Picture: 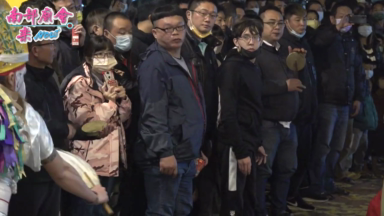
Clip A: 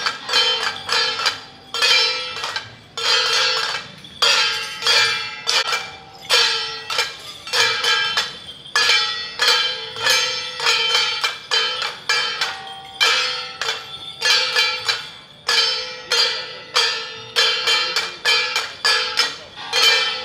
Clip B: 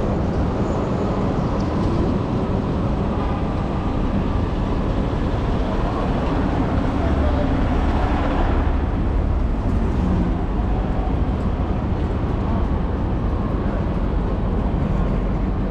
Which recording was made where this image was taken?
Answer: A